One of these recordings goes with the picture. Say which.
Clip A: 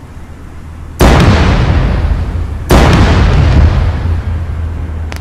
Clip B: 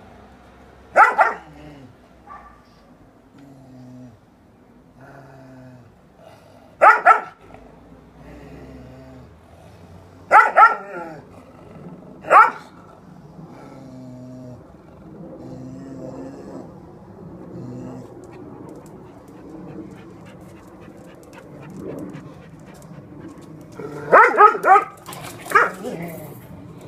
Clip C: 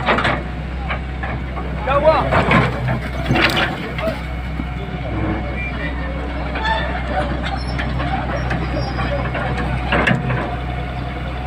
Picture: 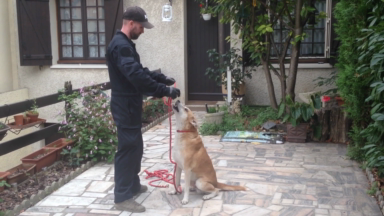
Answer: B